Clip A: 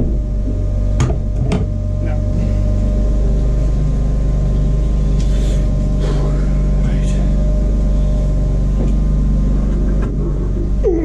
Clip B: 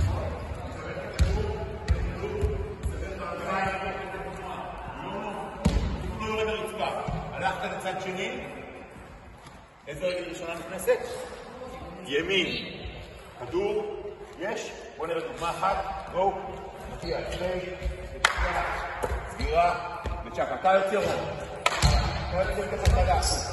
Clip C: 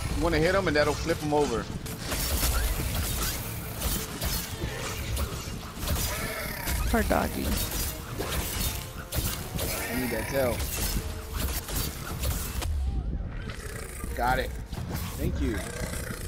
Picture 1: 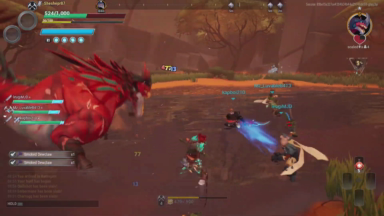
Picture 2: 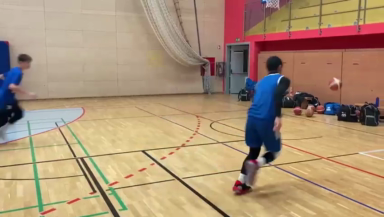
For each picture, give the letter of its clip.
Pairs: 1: C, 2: B